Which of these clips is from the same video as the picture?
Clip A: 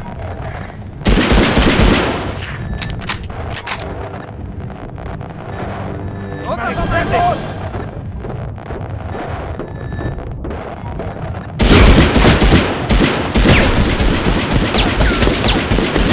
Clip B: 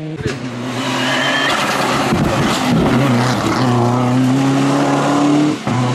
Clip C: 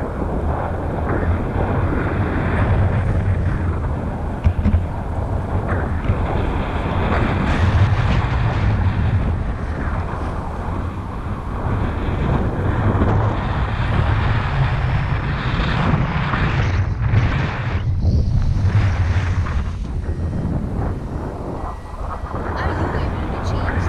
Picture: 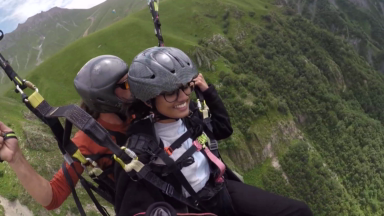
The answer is C